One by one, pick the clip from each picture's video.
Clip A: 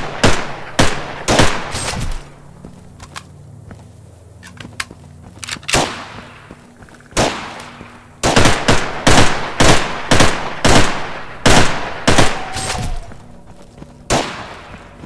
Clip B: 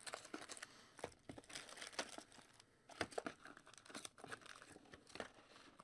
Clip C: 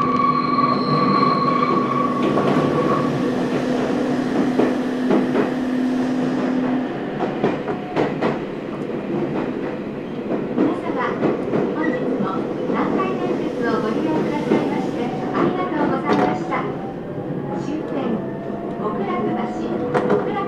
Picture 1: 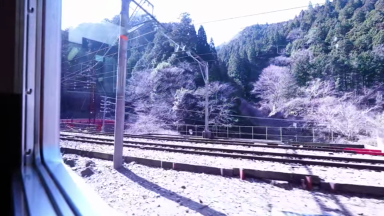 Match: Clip C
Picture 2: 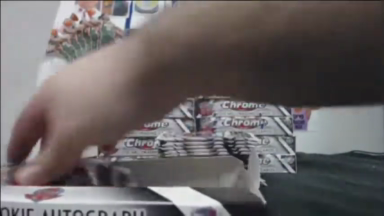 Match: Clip B